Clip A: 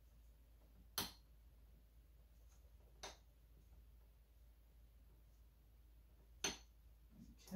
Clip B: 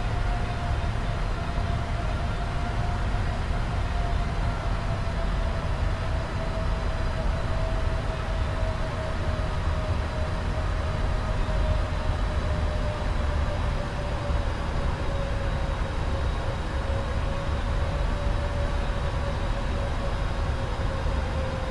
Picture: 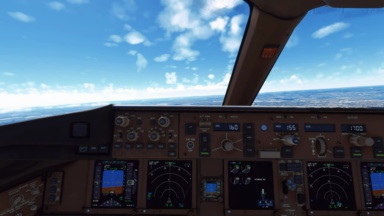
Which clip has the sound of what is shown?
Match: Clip B